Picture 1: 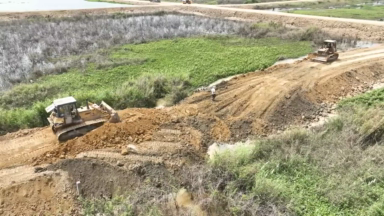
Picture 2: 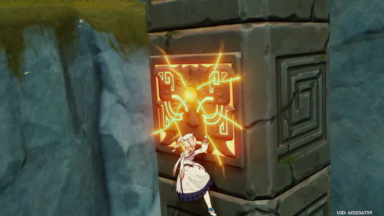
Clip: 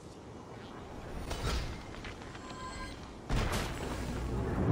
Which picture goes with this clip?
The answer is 2